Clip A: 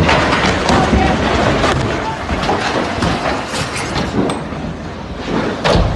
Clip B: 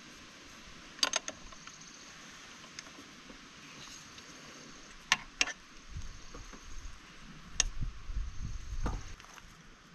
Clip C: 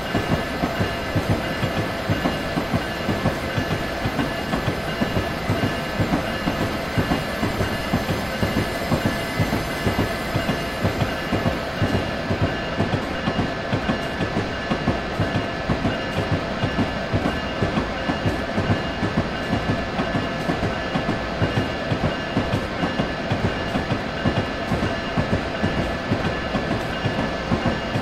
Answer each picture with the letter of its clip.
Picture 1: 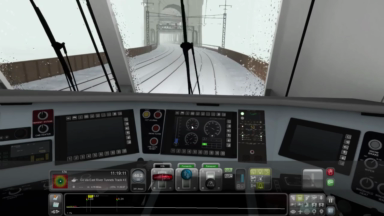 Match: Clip C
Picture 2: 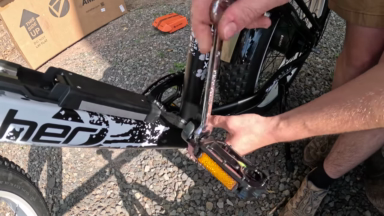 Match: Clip B